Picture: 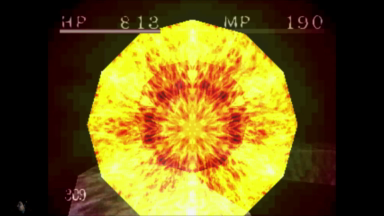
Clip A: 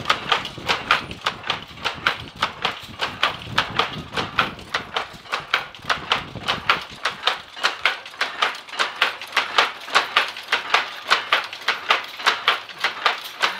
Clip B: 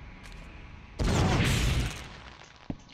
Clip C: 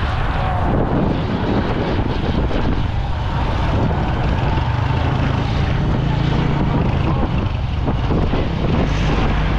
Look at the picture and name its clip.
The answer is B